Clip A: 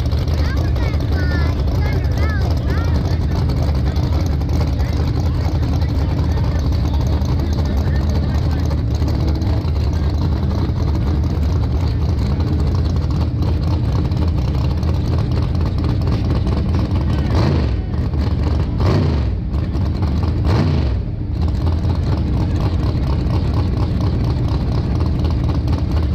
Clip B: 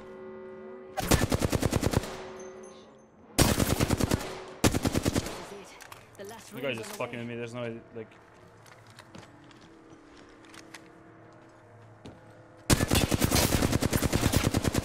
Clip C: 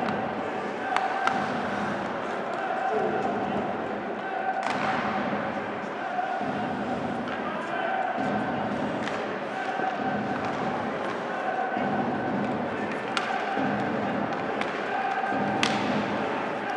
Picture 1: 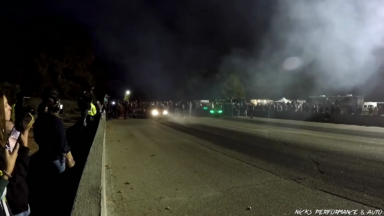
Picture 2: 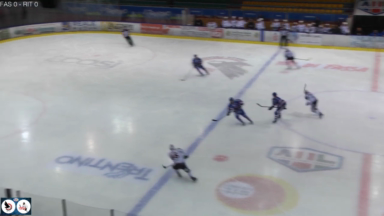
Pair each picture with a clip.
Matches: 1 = A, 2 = C